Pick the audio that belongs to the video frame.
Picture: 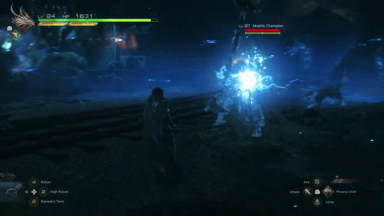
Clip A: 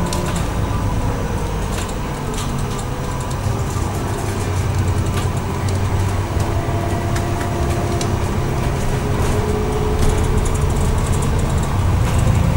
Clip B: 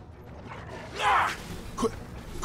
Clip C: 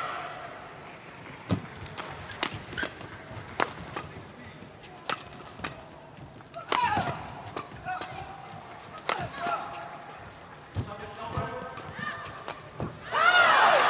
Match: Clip B